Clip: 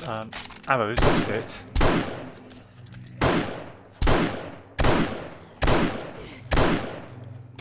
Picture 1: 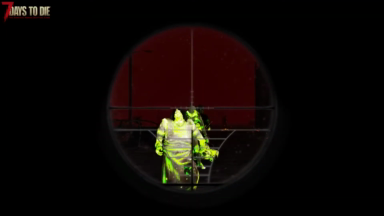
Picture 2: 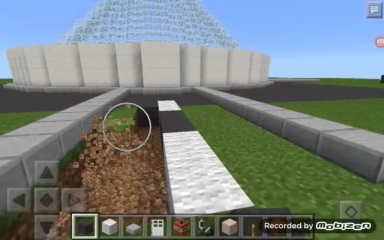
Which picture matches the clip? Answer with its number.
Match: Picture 1